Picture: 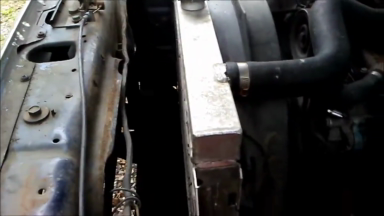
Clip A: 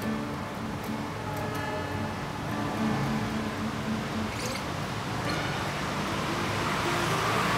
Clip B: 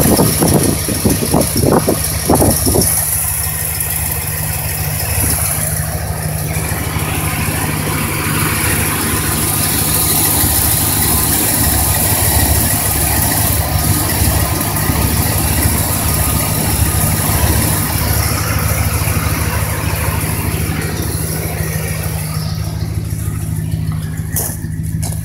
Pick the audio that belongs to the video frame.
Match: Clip B